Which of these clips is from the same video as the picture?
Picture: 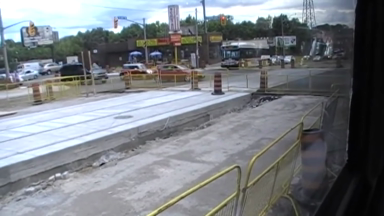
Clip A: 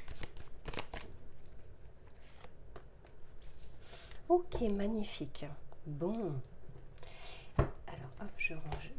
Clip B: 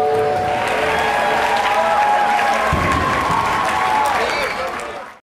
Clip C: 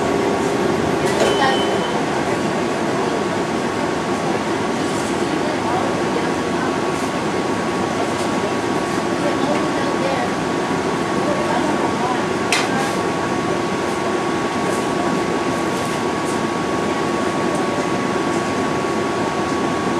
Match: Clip C